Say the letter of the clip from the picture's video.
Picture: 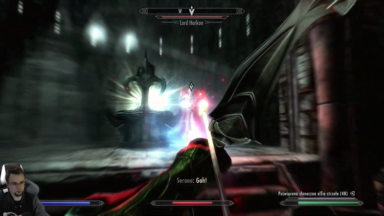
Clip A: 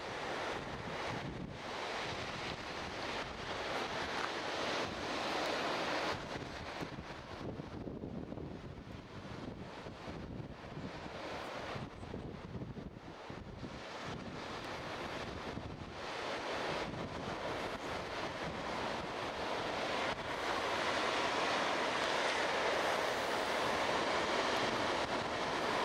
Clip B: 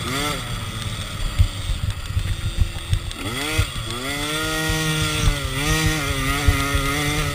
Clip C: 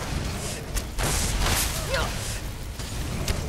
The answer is C